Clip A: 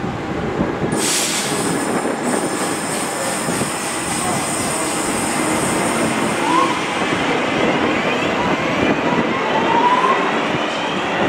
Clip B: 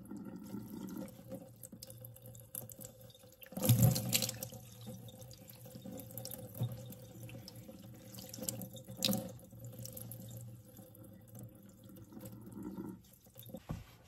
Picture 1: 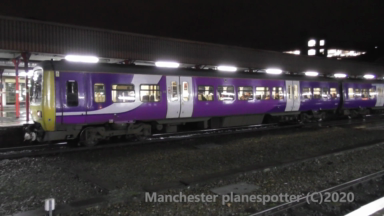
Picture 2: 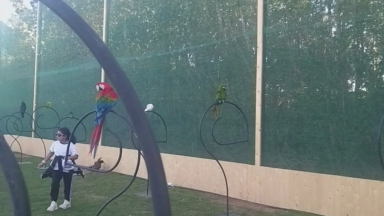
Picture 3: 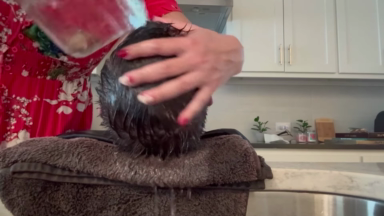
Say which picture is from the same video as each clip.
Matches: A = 1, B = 3